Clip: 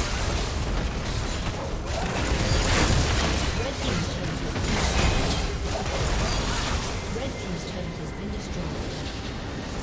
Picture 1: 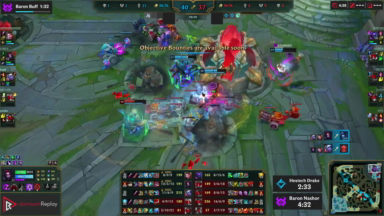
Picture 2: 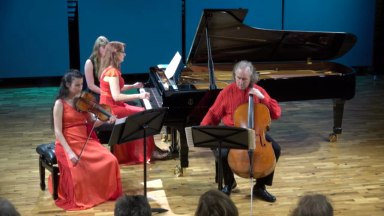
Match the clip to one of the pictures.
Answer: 1